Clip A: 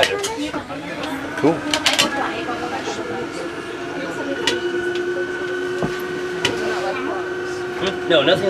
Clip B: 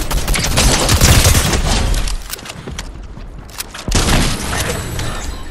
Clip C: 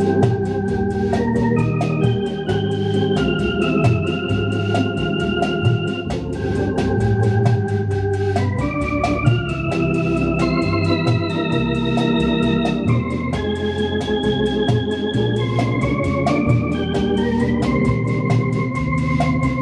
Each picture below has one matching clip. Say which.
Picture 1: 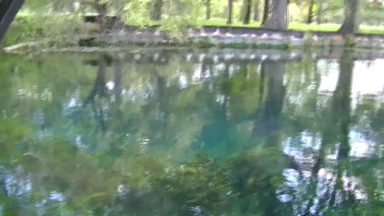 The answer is A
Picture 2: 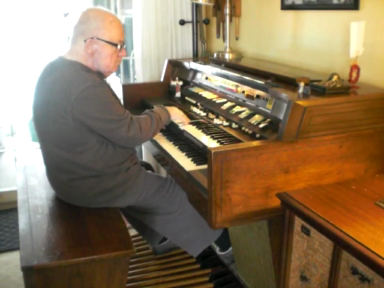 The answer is C